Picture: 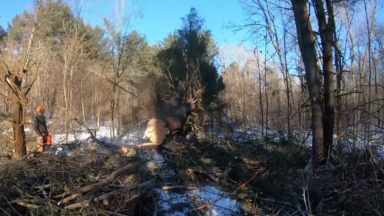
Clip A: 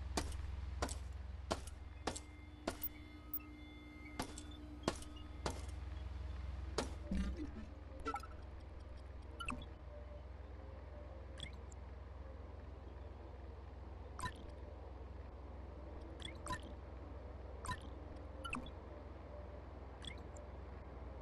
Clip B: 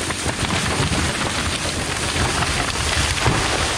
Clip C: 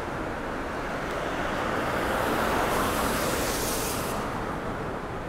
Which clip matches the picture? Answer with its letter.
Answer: B